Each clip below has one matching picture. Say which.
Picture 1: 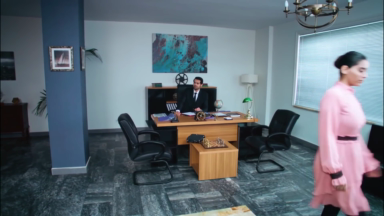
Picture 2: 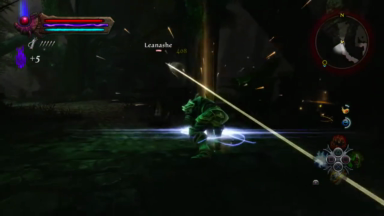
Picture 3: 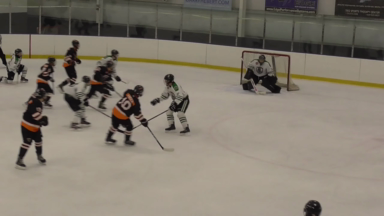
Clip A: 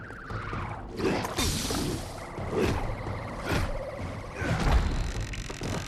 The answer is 2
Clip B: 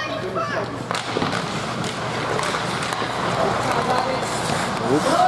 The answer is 3